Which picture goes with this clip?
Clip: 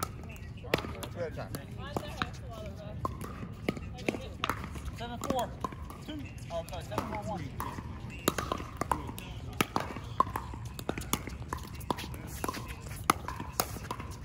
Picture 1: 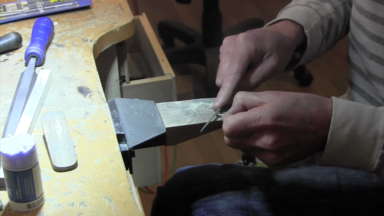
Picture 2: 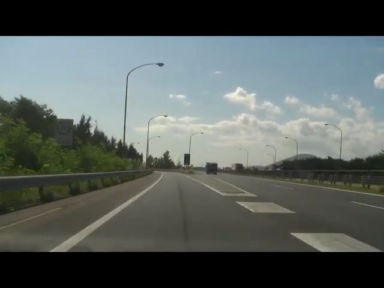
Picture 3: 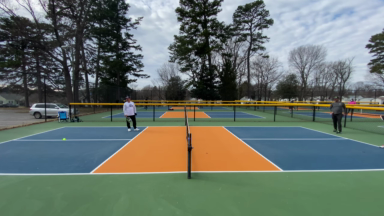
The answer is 3